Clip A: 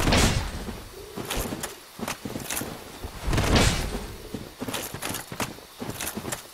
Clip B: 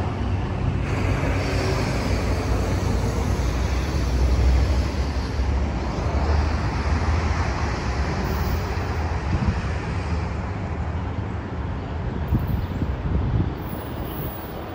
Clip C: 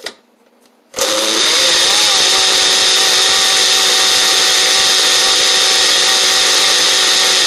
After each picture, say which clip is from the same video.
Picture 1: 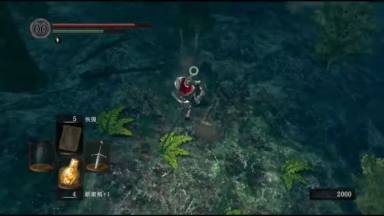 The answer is A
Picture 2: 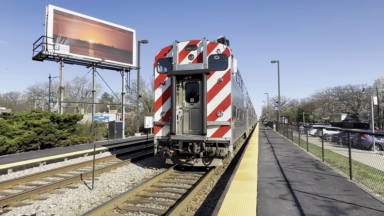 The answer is B